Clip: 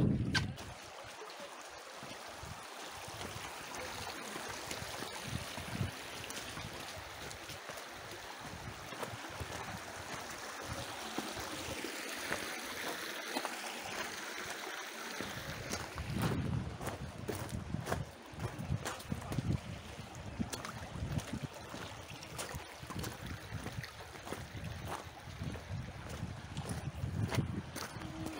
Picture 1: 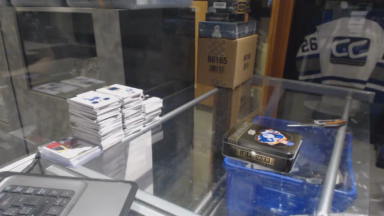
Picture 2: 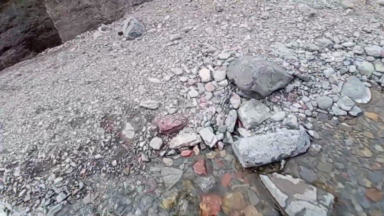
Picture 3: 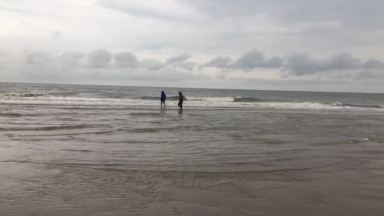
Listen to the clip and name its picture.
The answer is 2